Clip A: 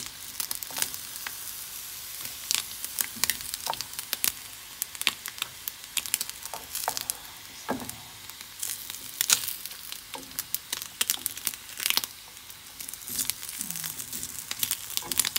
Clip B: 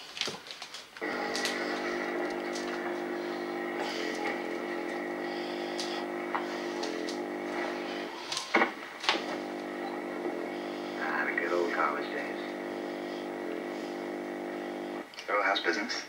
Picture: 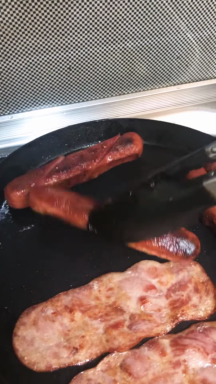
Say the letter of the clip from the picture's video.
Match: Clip A